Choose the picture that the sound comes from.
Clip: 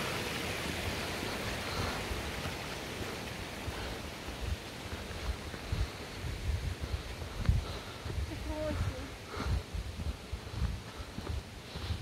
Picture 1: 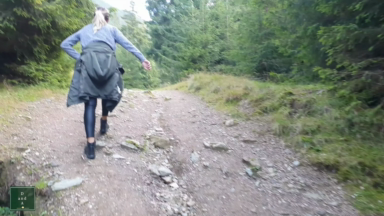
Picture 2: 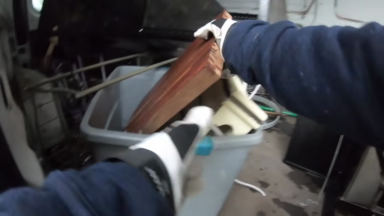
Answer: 1